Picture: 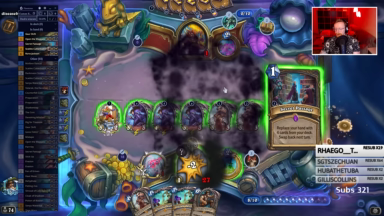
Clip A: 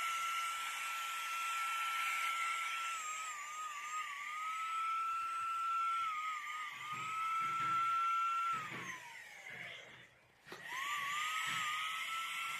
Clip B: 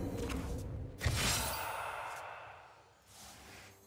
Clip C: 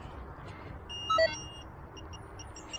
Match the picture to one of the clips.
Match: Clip B